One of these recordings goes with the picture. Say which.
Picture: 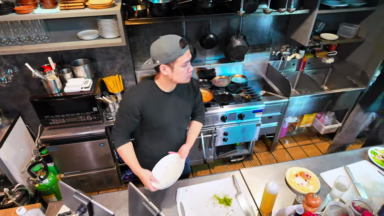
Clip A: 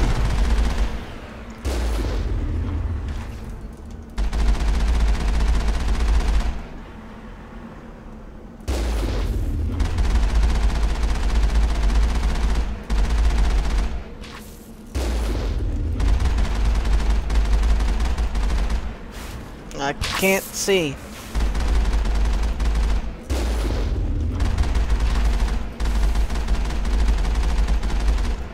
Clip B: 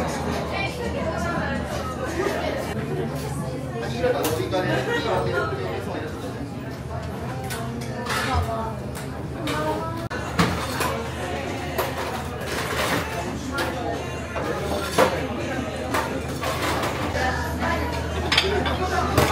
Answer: B